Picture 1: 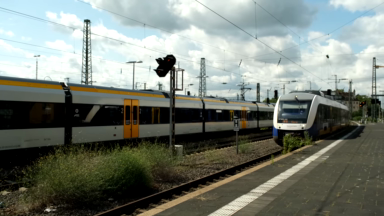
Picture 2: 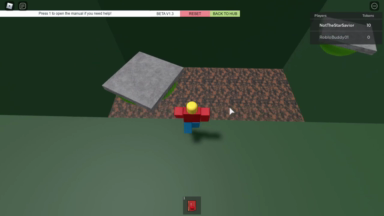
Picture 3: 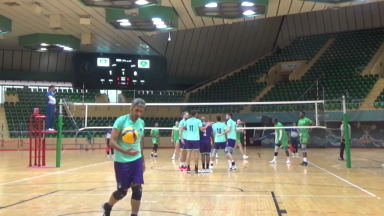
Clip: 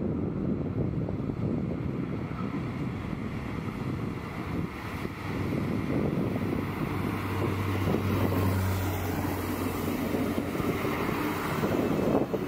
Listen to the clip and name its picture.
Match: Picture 1